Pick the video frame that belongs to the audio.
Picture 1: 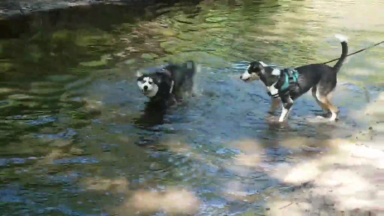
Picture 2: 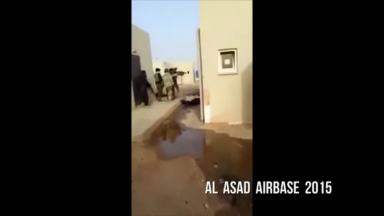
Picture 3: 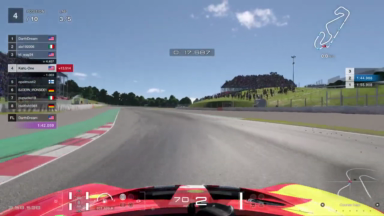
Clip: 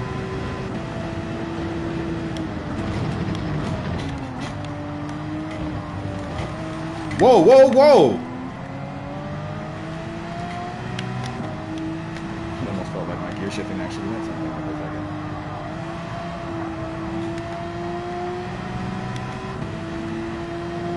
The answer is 3